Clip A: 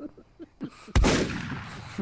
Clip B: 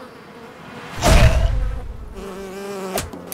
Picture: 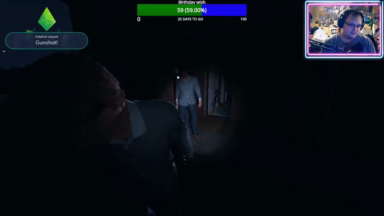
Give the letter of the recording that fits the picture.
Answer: A